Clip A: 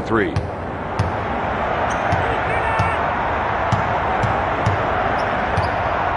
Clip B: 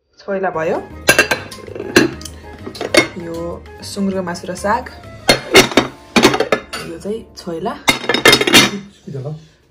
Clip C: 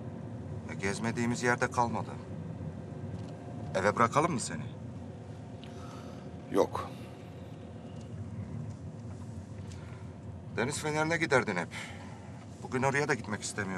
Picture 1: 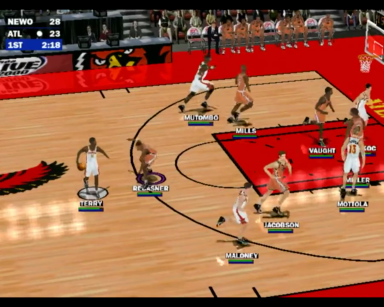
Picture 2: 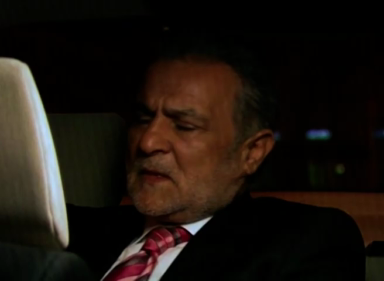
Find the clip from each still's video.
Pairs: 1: A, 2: C